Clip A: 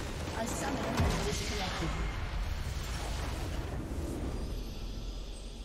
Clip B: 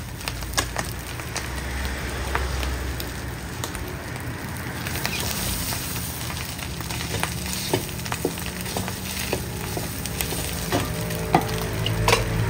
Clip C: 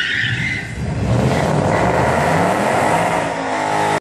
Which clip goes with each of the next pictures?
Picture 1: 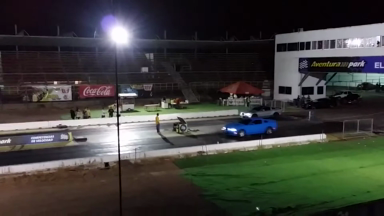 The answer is C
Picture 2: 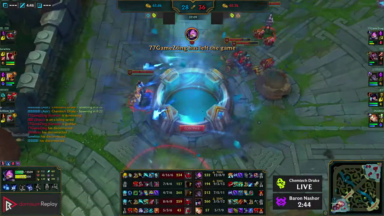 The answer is A